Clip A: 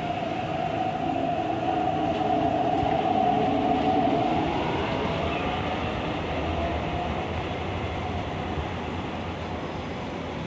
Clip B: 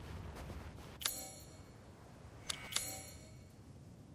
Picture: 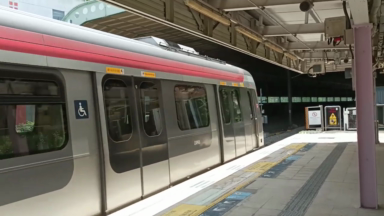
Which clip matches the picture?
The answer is A